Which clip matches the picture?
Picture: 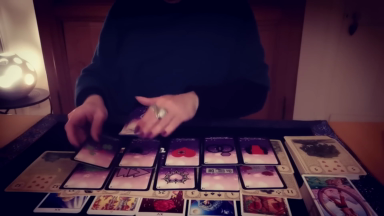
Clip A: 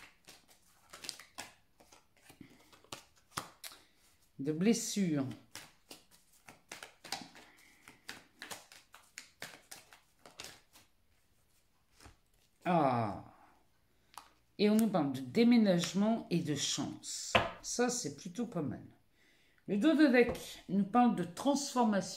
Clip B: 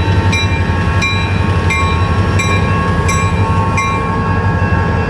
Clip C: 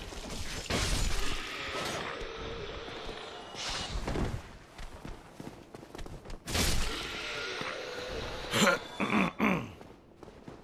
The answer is A